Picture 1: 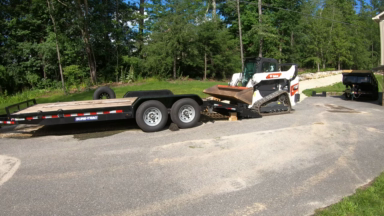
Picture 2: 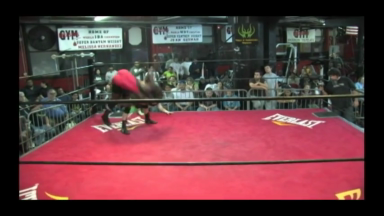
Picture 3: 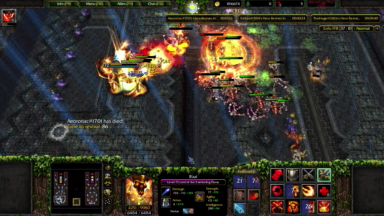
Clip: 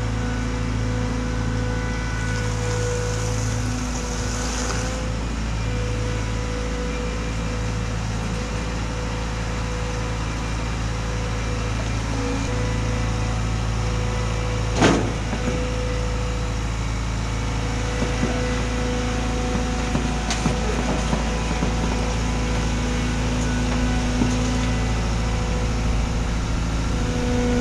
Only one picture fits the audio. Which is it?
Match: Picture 1